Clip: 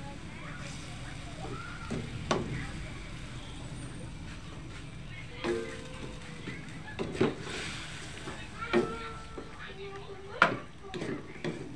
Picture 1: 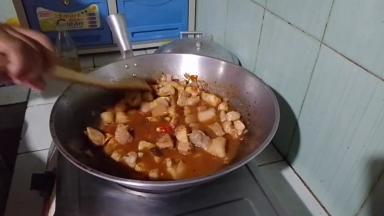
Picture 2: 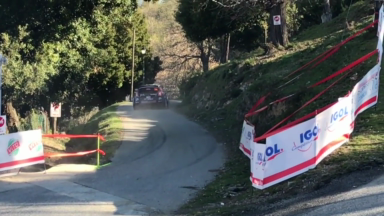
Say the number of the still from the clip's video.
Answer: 1